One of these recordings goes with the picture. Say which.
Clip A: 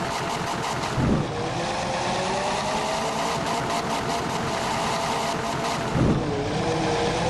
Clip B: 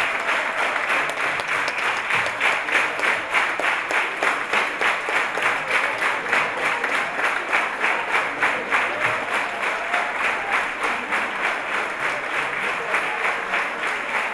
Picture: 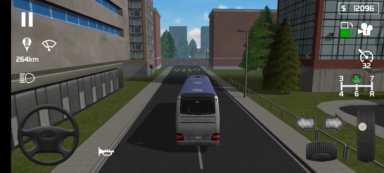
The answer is A